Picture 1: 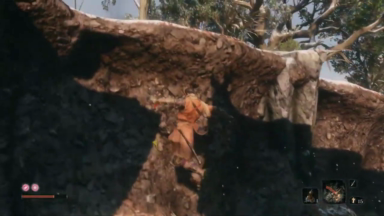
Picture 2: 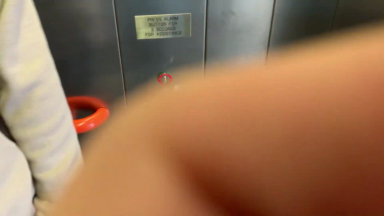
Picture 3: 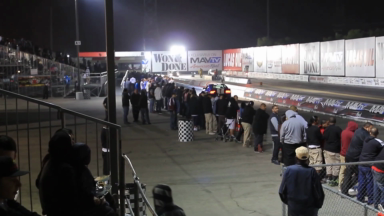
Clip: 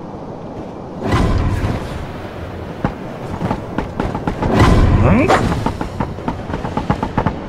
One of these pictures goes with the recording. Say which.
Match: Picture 1